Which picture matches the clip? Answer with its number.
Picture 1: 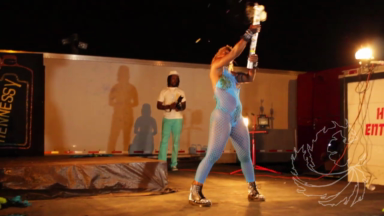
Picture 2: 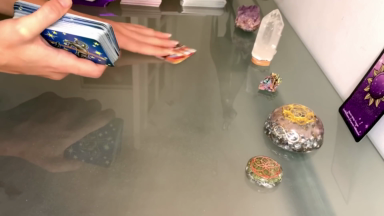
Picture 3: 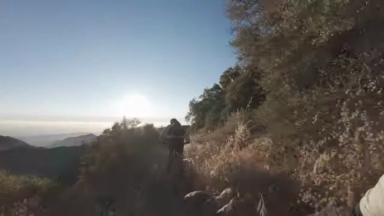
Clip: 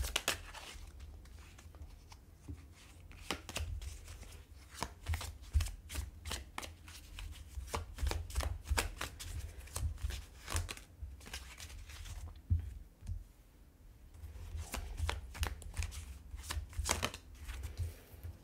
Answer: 2